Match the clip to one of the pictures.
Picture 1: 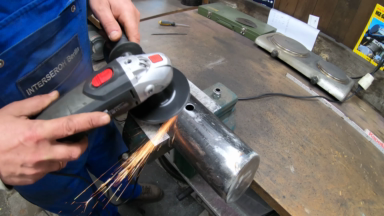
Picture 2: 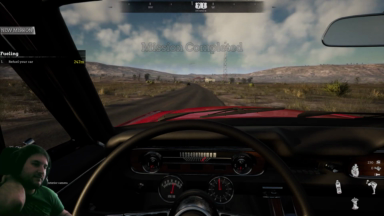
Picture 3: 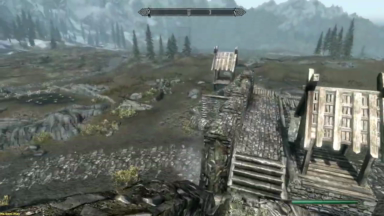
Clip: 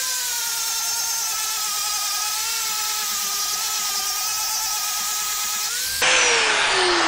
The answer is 1